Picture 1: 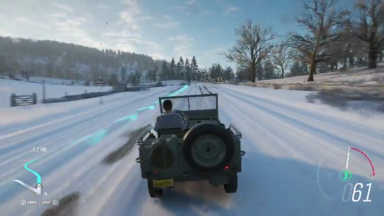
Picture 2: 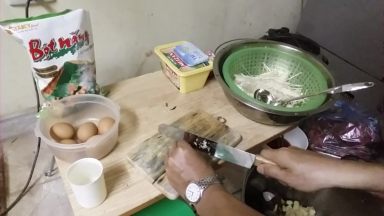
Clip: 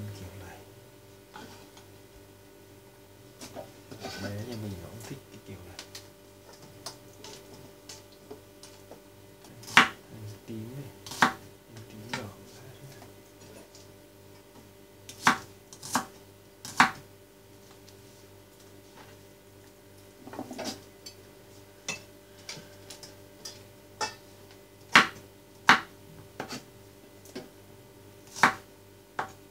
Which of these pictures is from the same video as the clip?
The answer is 2